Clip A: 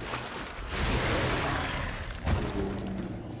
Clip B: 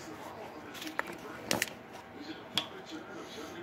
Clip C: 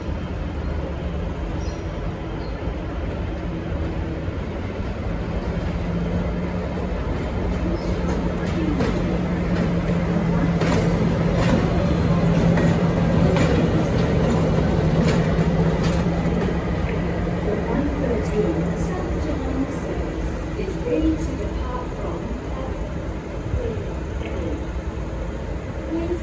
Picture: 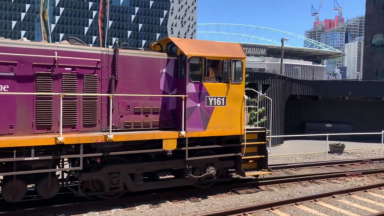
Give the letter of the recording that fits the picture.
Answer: C